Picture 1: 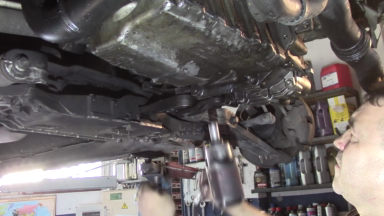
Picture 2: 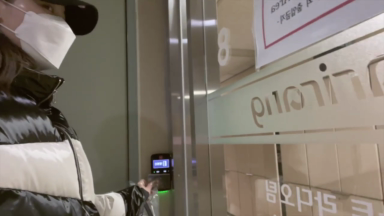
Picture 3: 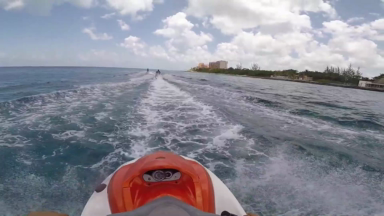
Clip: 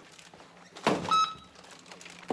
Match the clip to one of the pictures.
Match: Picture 2